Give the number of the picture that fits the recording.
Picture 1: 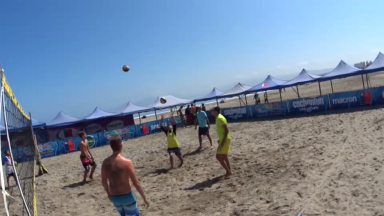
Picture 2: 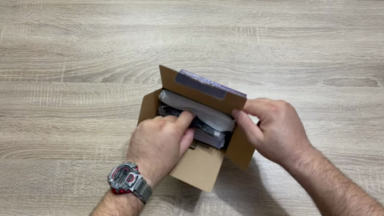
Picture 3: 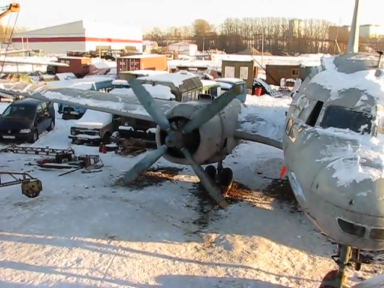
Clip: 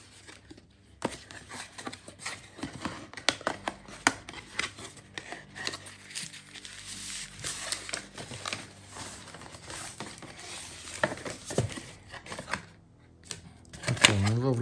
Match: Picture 2